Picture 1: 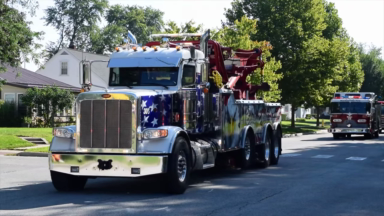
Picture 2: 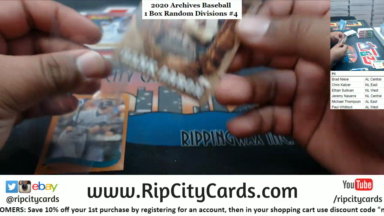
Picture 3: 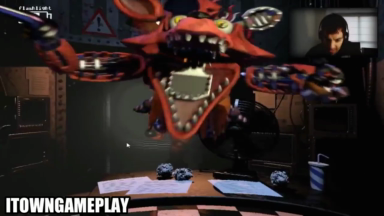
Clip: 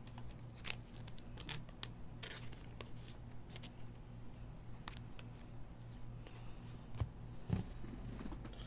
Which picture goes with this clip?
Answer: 2